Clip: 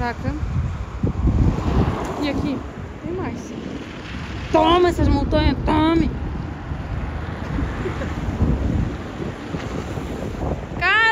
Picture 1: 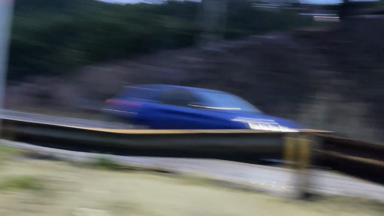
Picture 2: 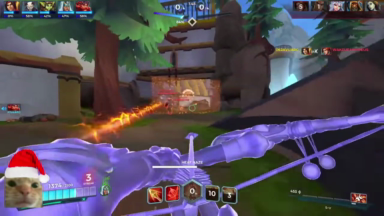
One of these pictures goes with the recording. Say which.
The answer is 1